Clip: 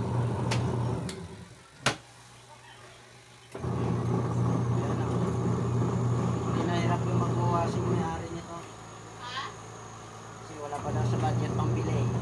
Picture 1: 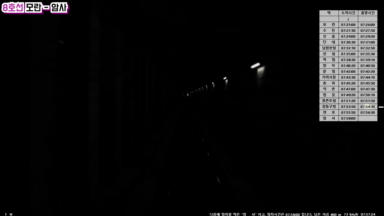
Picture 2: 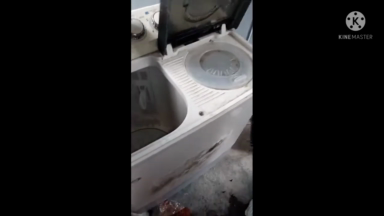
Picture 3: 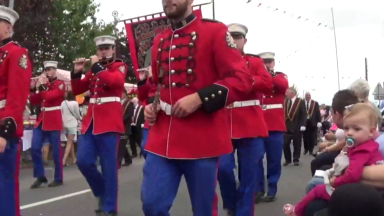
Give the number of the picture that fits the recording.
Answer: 2